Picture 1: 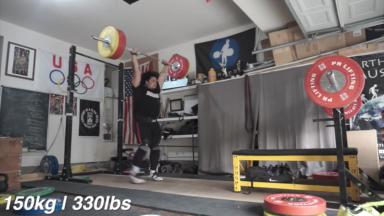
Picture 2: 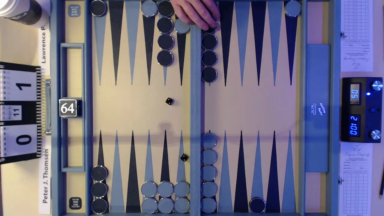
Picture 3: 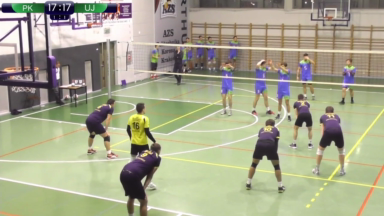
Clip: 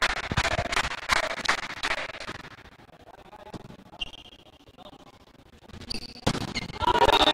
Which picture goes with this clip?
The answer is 3